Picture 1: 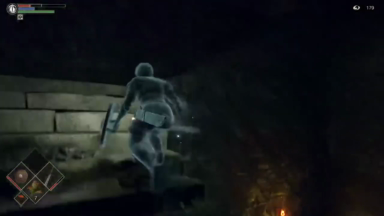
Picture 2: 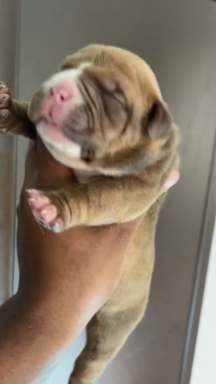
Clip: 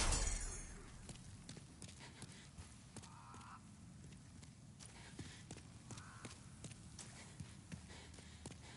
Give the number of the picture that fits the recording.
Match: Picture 1